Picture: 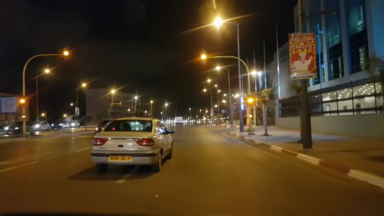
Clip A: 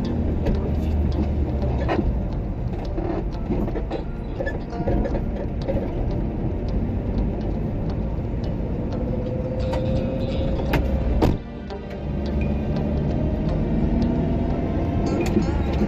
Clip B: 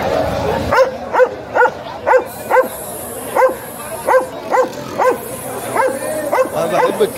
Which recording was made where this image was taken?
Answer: A